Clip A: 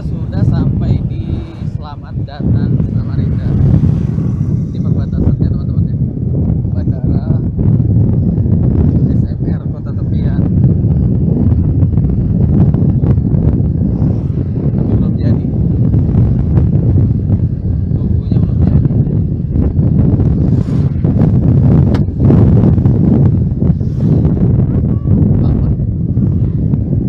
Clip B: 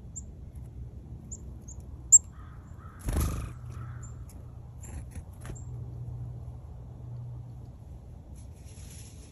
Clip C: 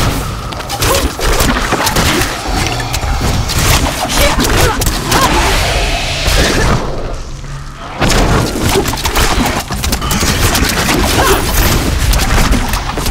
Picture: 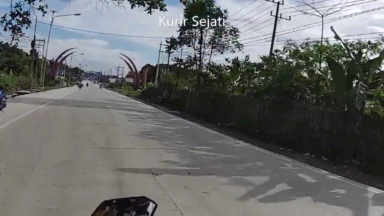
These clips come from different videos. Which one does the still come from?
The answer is A